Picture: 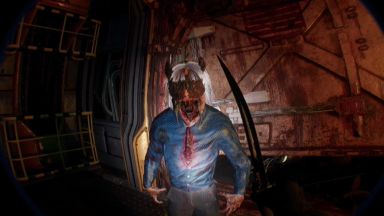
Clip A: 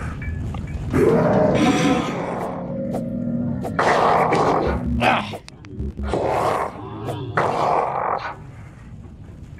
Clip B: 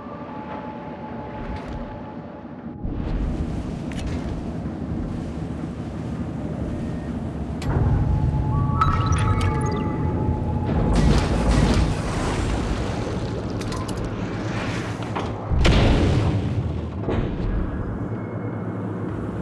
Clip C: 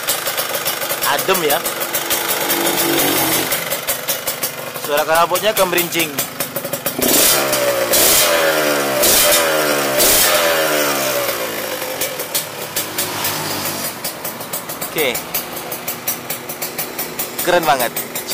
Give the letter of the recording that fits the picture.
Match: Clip A